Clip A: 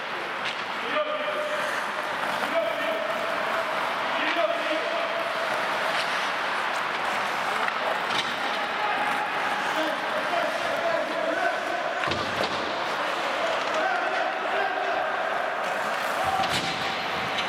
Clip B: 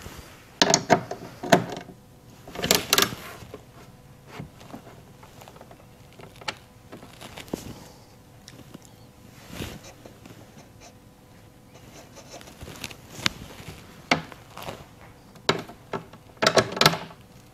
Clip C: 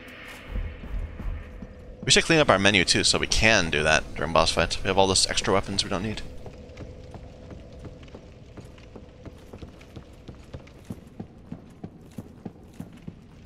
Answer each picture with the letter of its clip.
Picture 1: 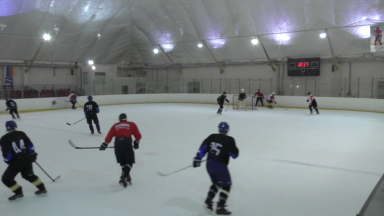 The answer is A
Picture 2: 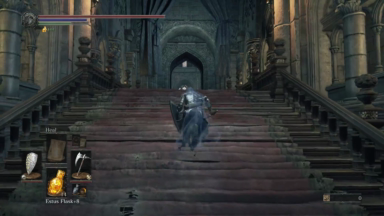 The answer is C